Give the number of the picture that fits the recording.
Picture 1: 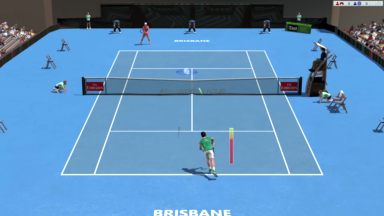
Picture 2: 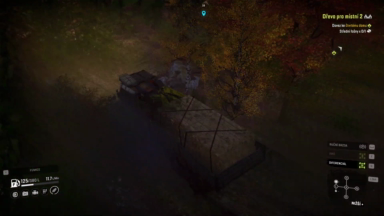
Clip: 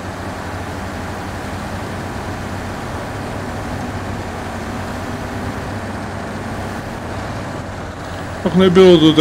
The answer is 2